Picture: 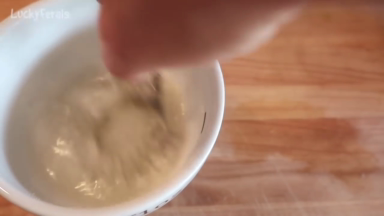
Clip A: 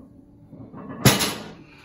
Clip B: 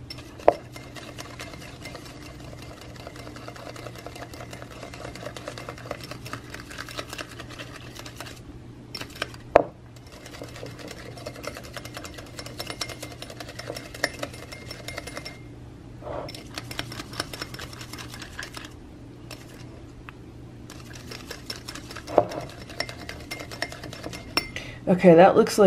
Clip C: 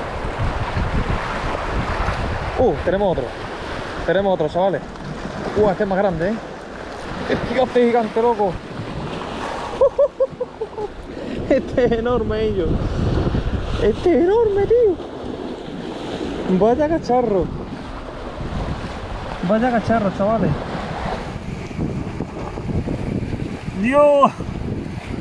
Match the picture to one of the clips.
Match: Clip B